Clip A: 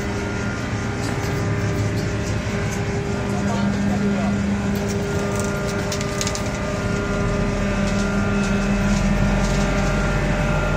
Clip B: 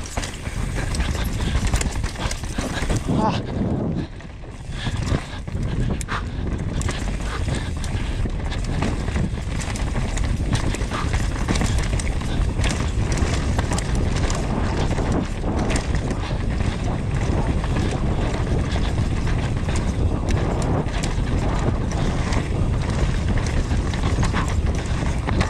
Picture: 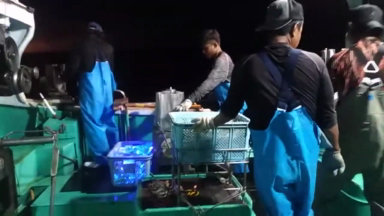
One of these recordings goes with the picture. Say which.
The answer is A